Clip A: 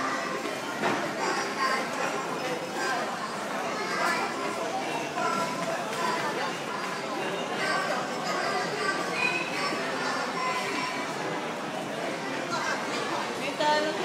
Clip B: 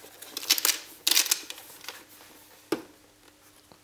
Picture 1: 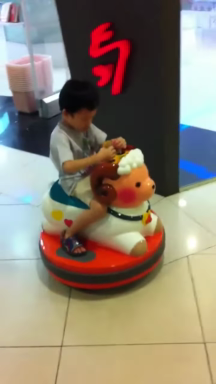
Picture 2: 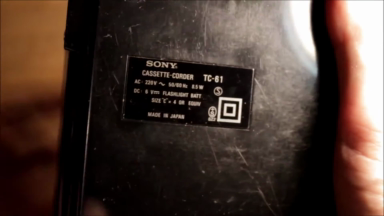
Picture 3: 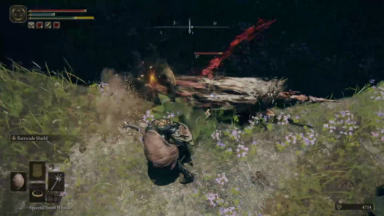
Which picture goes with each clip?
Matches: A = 1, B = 2